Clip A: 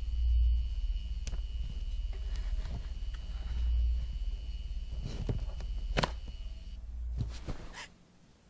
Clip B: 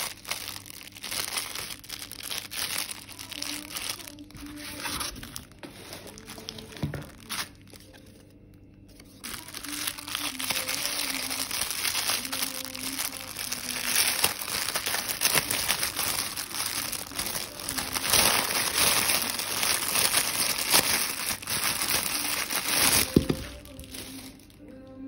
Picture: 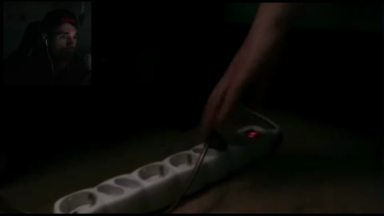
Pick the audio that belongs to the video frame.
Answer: A